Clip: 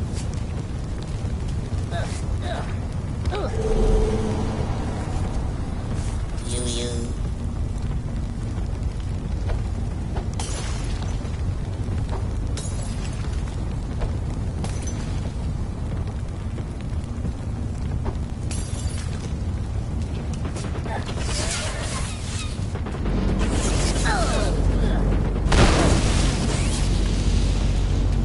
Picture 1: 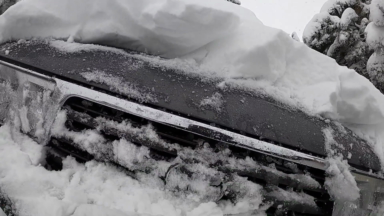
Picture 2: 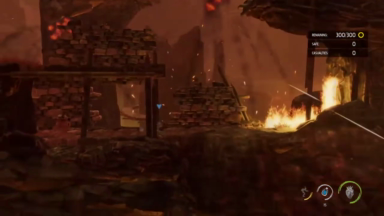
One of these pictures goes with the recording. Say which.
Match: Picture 2